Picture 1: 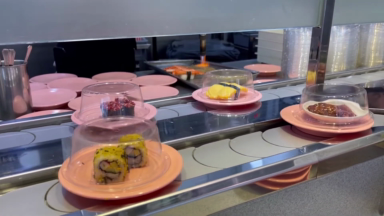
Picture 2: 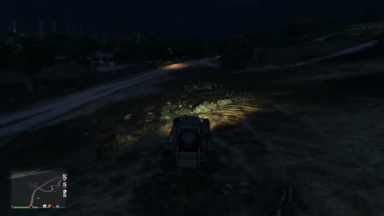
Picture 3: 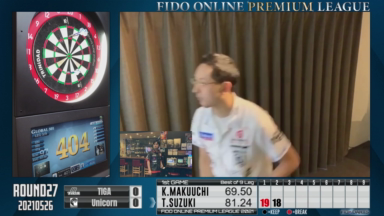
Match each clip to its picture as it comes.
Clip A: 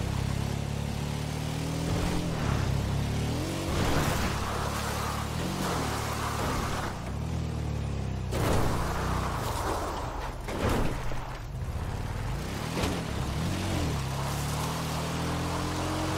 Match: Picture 2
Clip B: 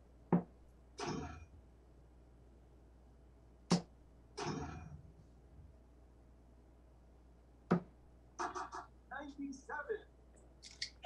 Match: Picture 3